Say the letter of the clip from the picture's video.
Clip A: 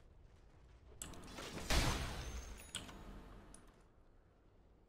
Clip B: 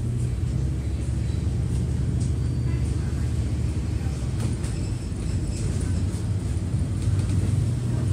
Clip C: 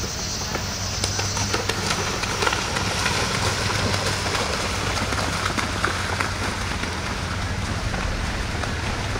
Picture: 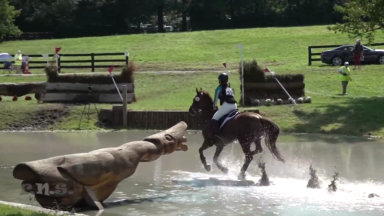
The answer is C